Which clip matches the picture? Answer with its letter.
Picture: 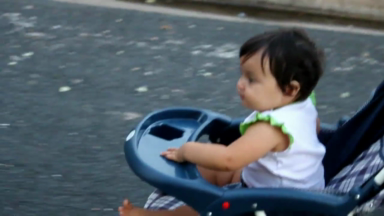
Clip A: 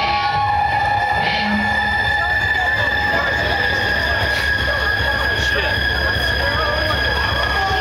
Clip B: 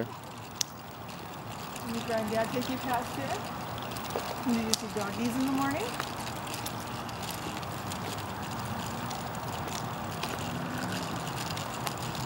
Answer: B